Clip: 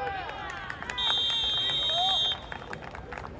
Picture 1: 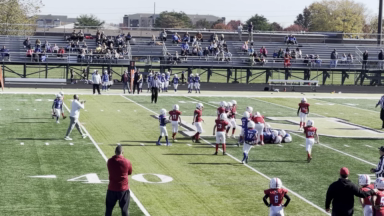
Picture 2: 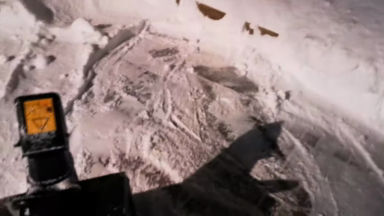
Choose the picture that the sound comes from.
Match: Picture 1